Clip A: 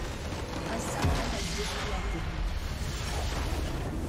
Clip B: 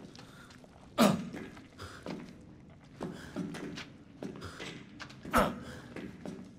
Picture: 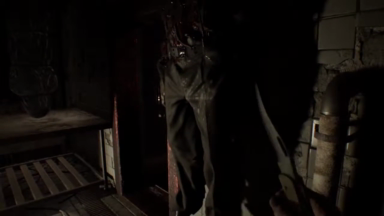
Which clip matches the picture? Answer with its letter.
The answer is B